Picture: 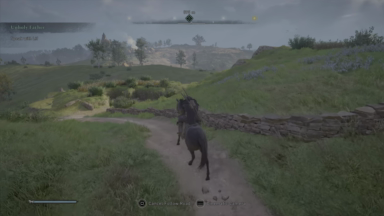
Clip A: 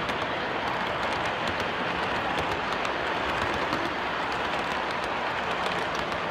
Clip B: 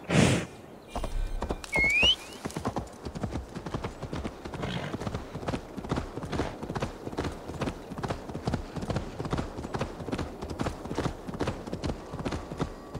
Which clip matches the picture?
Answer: B